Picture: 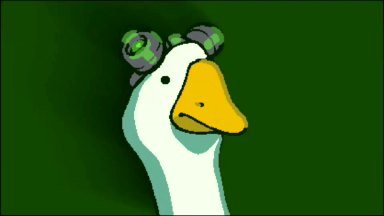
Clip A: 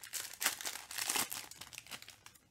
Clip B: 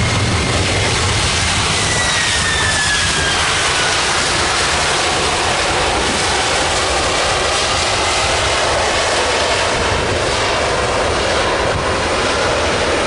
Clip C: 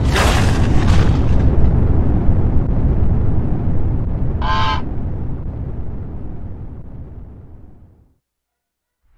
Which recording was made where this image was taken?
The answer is C